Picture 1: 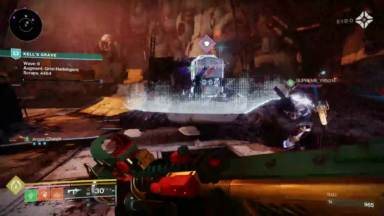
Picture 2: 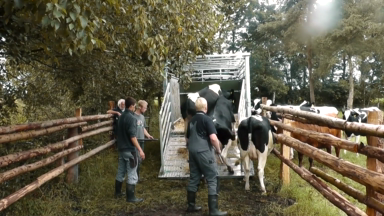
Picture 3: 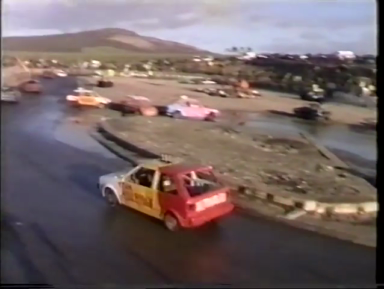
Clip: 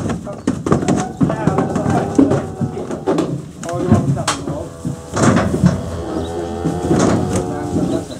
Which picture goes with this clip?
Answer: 2